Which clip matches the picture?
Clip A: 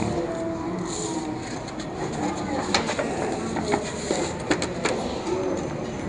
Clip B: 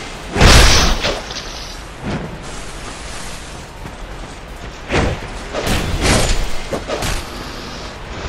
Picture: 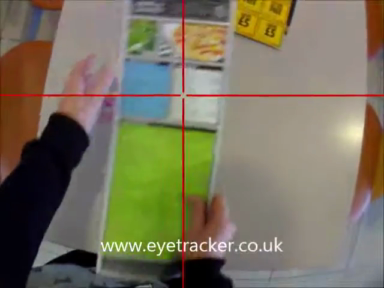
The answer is A